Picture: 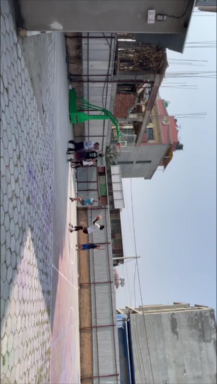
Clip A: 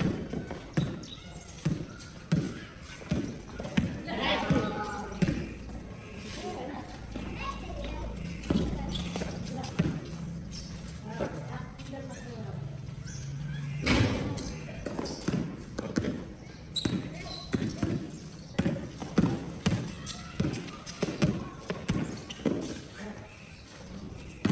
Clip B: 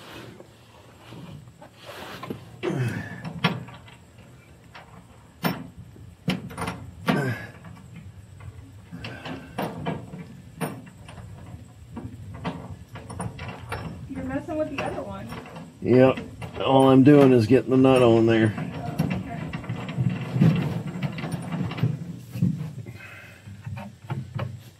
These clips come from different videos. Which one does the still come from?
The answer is A